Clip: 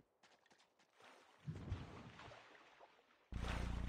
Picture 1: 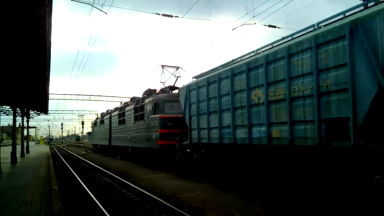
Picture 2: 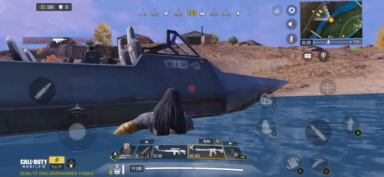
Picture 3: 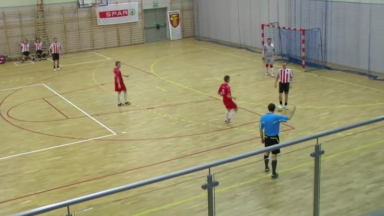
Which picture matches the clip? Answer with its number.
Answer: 2